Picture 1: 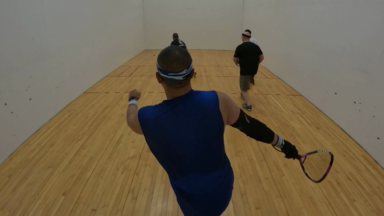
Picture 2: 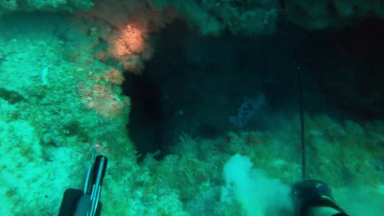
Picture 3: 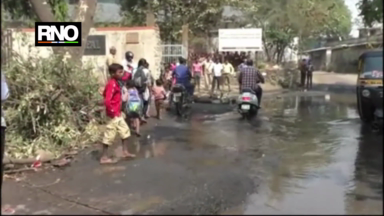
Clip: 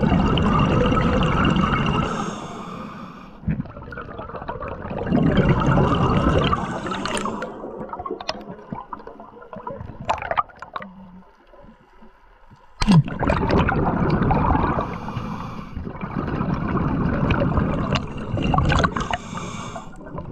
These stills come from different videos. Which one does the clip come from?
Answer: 2